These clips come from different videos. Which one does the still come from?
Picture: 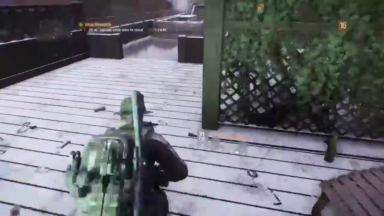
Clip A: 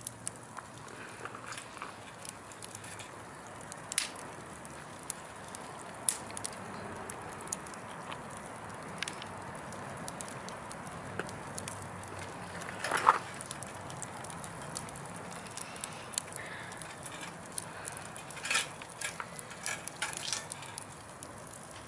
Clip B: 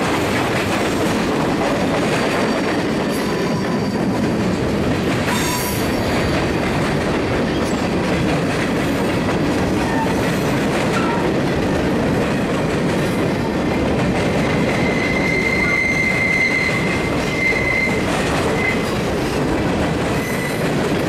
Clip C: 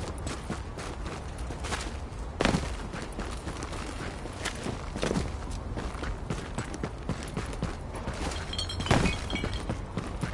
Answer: C